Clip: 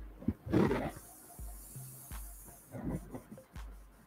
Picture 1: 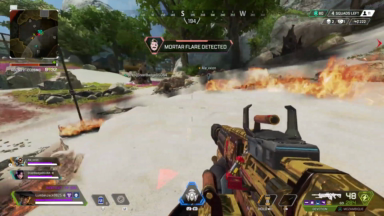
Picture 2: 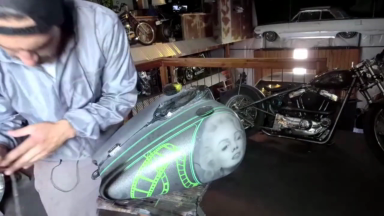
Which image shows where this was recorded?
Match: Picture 2